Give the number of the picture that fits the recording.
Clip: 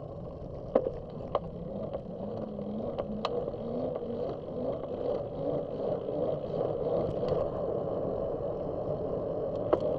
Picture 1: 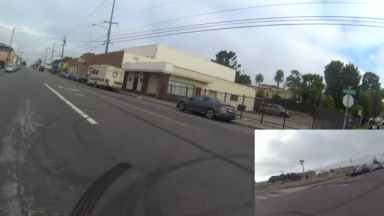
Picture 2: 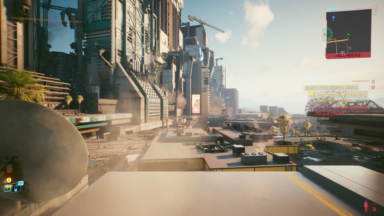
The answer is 1